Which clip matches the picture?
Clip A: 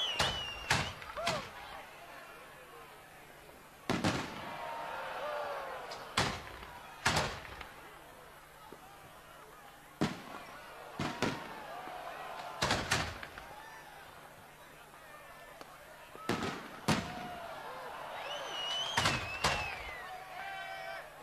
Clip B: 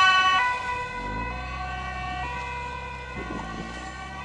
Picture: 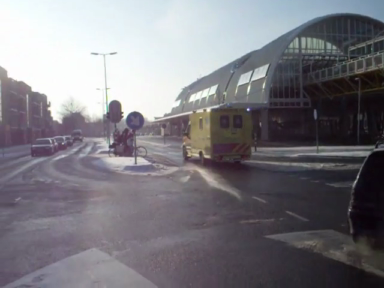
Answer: B